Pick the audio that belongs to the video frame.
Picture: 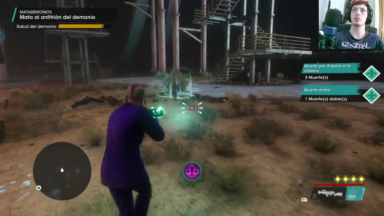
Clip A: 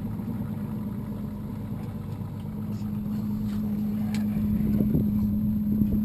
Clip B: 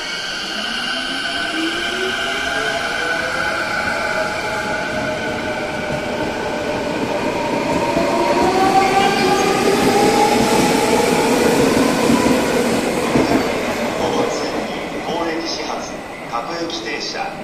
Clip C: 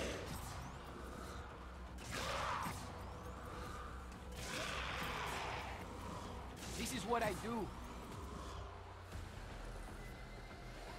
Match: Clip C